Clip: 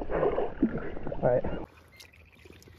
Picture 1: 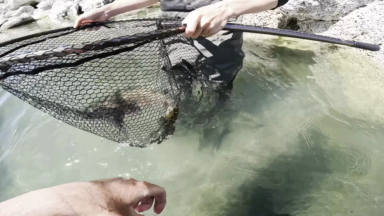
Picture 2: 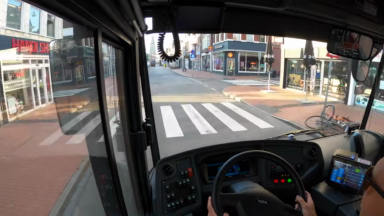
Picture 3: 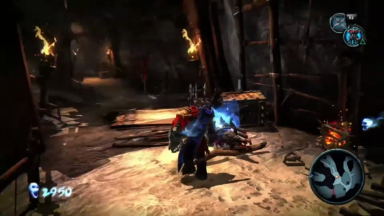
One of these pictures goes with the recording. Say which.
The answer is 1